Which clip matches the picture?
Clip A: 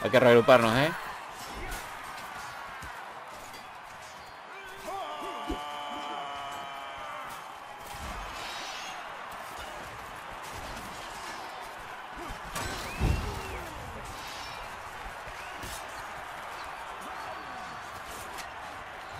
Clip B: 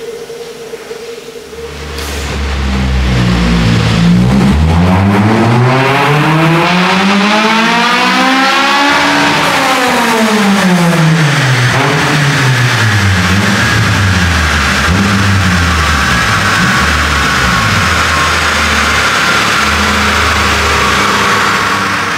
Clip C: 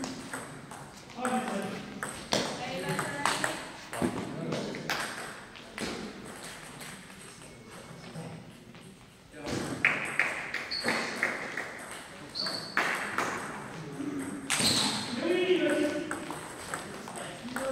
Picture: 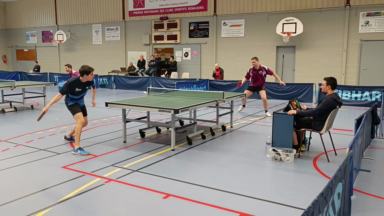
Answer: C